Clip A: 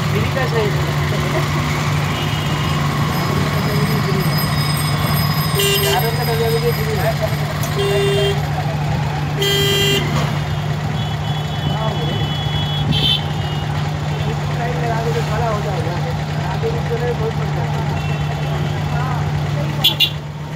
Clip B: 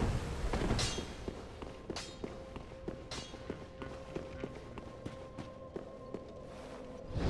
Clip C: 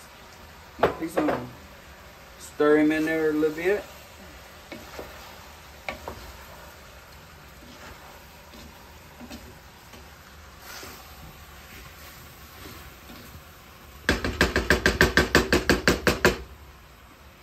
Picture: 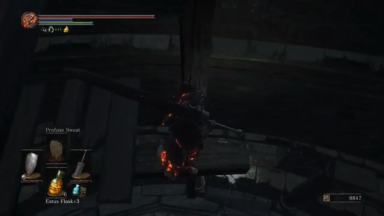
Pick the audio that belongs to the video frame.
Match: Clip B